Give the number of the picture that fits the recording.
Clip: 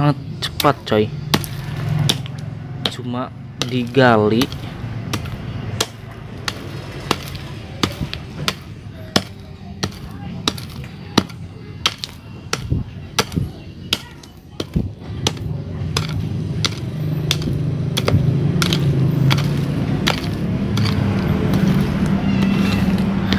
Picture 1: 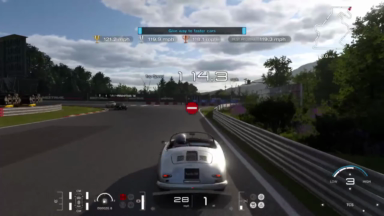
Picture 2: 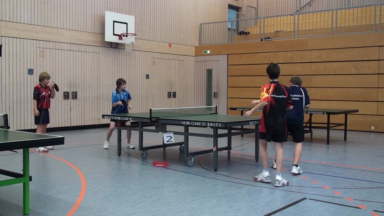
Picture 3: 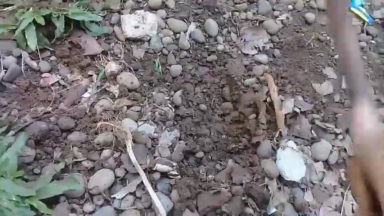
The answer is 3